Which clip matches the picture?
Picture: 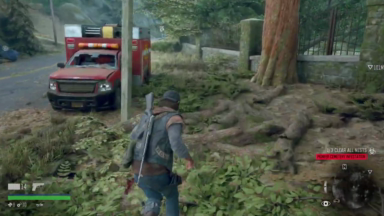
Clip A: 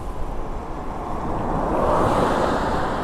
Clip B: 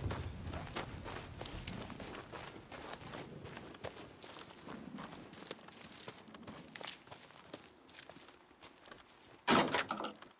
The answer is B